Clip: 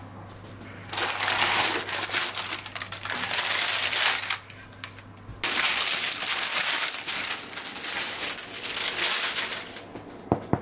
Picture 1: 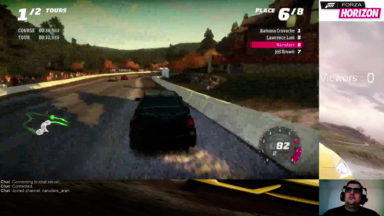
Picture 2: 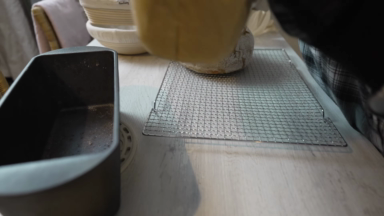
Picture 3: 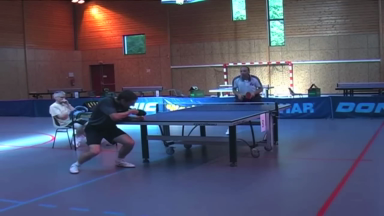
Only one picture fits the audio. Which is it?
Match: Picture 2